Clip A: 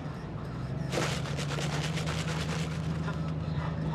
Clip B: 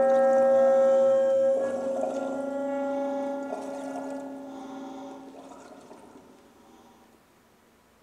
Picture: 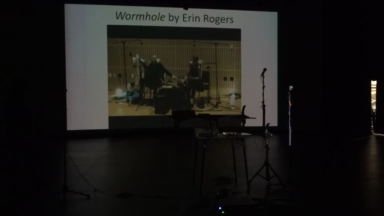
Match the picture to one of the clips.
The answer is B